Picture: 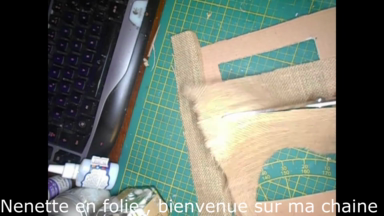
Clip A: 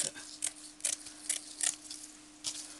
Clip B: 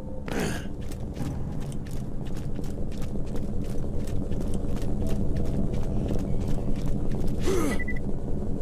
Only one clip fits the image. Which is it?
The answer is A